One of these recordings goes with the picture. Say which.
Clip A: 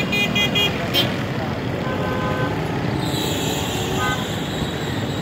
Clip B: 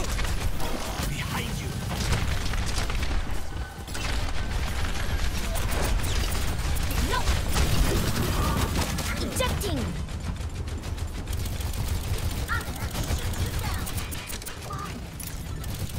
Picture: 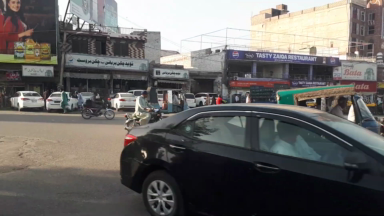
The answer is A